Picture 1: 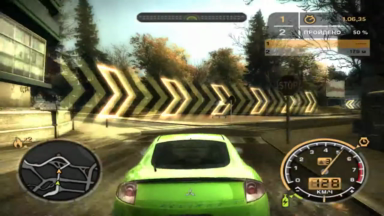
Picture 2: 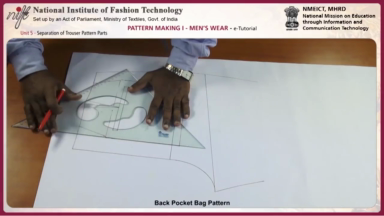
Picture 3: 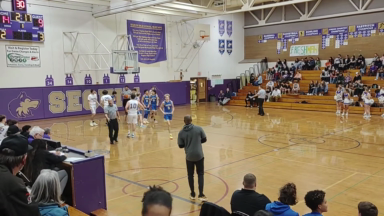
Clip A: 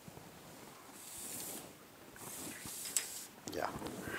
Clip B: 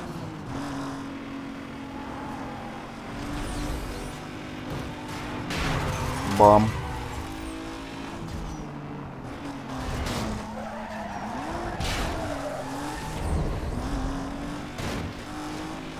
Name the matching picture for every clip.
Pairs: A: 2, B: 1